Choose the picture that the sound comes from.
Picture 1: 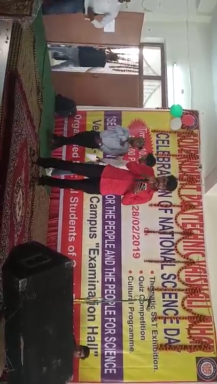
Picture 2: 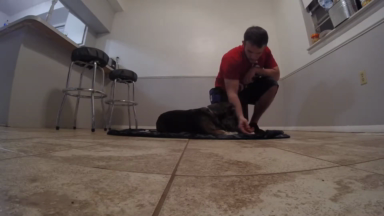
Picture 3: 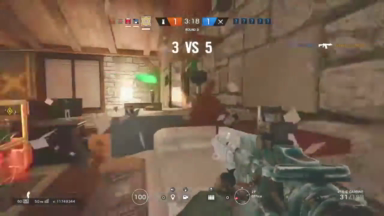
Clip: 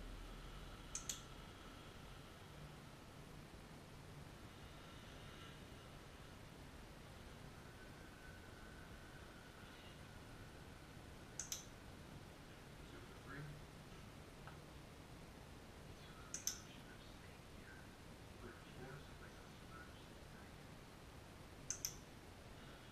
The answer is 2